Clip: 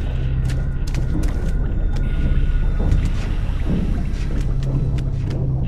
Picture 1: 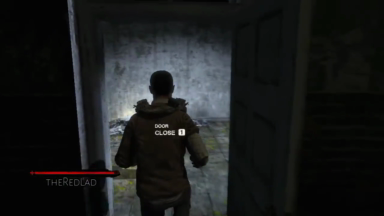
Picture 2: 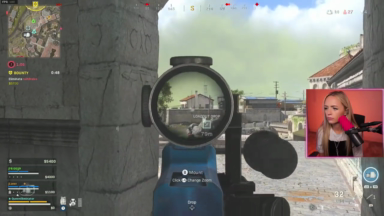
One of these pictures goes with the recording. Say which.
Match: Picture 1